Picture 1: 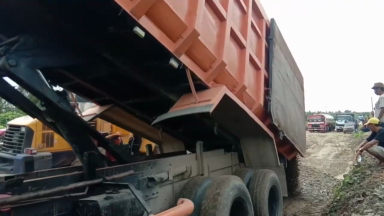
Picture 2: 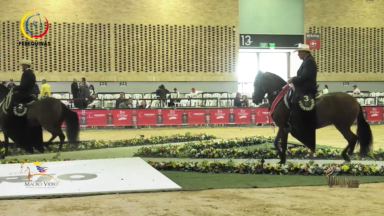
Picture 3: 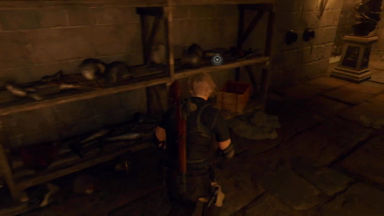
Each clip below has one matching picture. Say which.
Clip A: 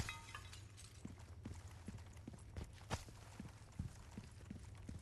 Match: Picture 3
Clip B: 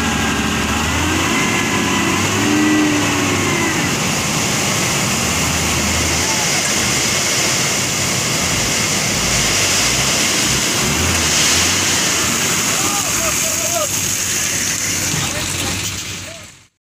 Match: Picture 1